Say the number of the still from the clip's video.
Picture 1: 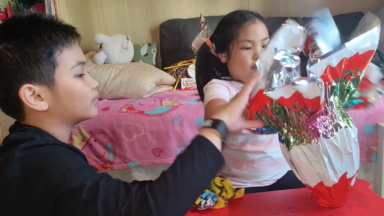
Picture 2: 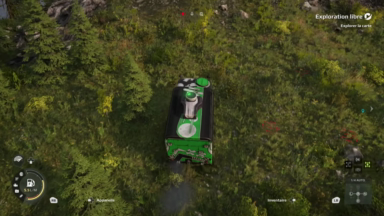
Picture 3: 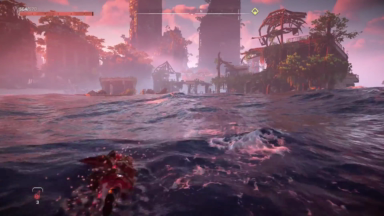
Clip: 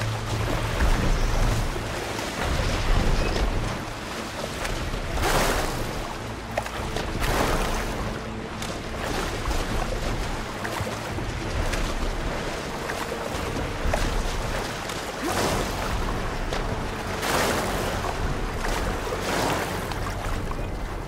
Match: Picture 3